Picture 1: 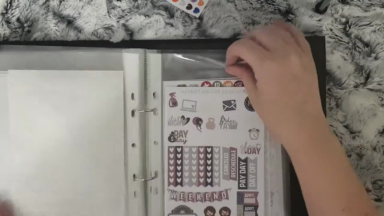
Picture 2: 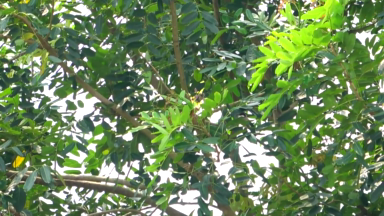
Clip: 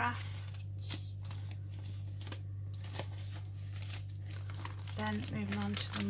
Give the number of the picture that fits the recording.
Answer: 1